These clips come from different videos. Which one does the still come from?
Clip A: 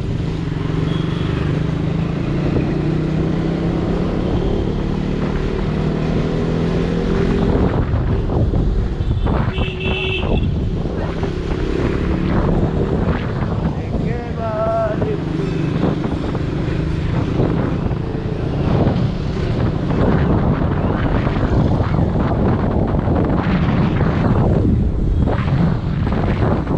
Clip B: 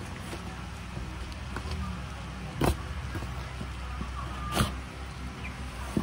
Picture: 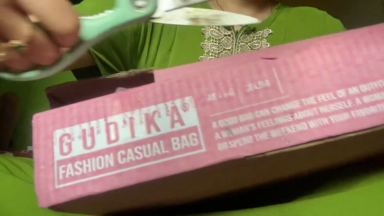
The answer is B